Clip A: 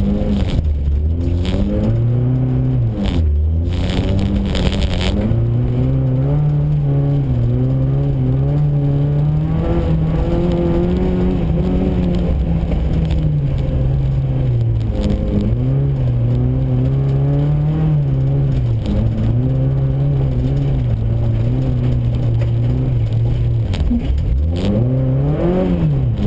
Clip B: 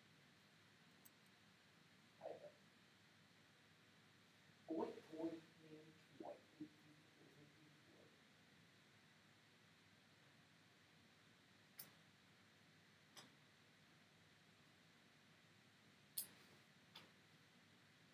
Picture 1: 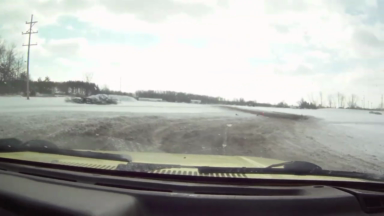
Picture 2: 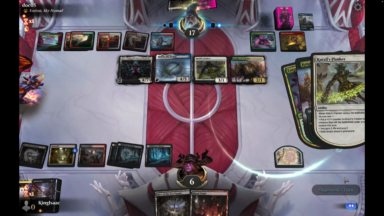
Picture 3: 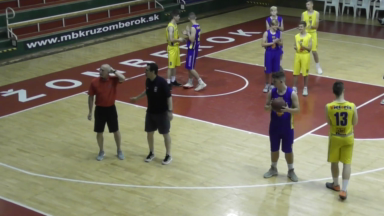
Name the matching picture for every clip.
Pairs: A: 1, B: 2